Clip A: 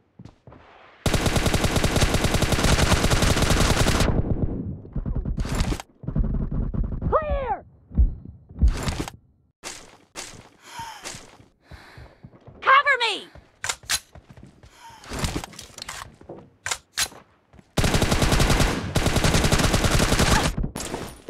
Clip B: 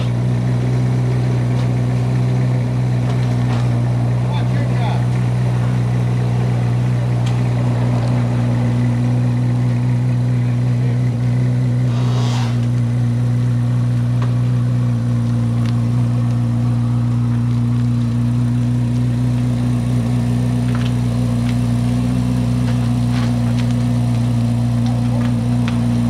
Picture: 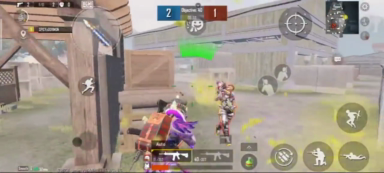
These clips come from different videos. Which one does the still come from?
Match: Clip A